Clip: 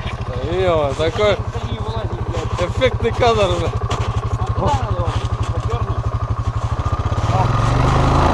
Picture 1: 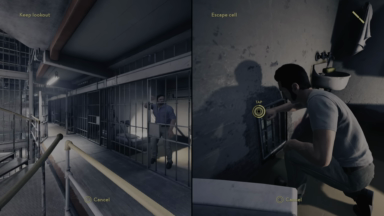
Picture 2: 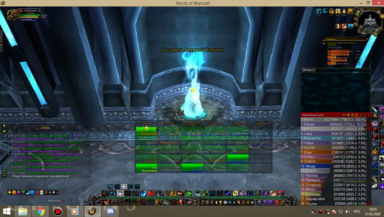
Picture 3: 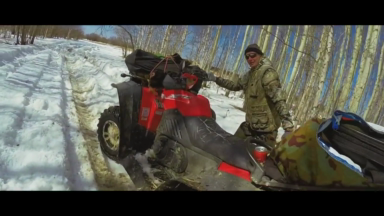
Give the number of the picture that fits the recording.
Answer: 3